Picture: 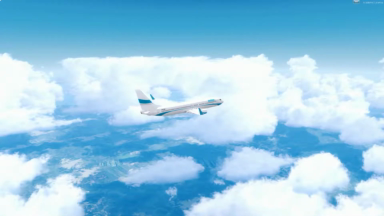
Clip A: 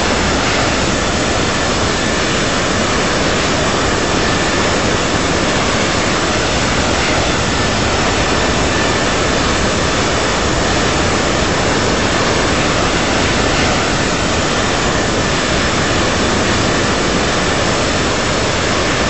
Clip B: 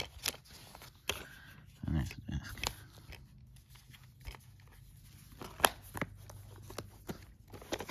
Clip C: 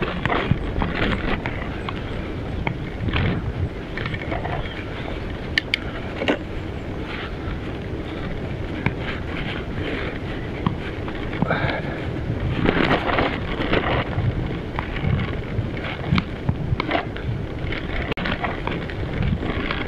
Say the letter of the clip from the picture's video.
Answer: A